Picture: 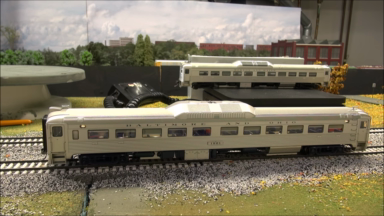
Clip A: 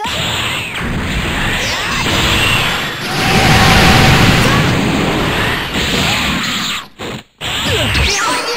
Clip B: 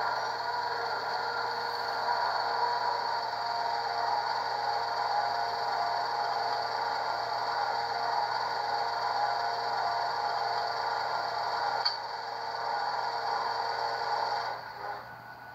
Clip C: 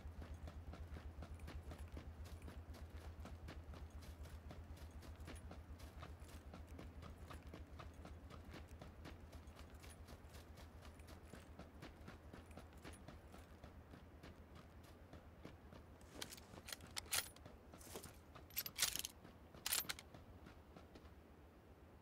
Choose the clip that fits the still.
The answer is B